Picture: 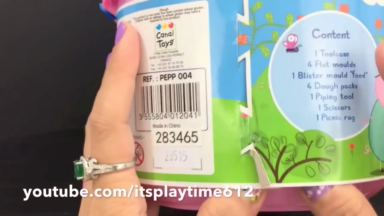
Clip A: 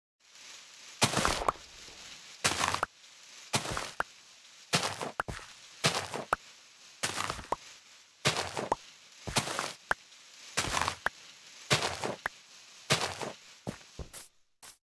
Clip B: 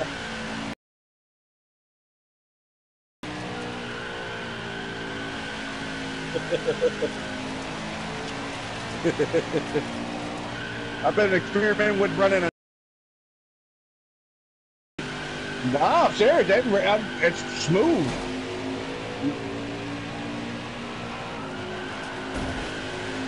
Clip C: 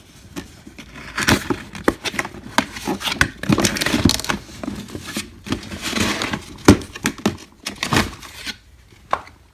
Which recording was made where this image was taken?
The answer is C